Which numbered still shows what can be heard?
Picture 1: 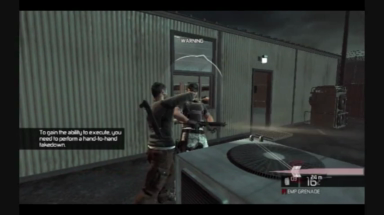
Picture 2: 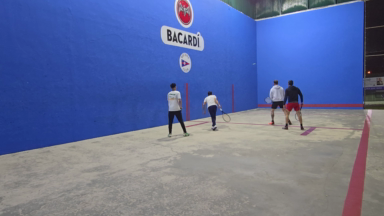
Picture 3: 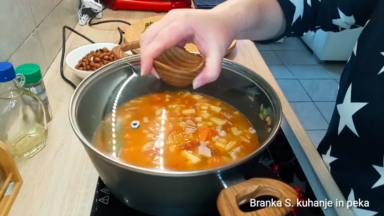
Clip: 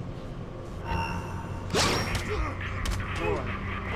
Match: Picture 1